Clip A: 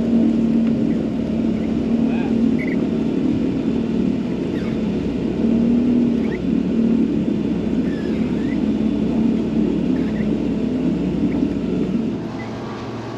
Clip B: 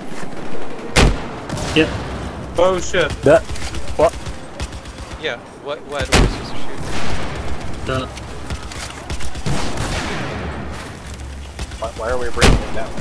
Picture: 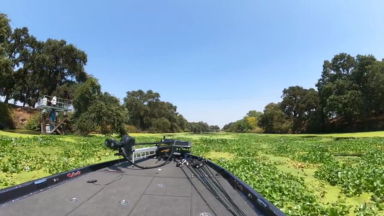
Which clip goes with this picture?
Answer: A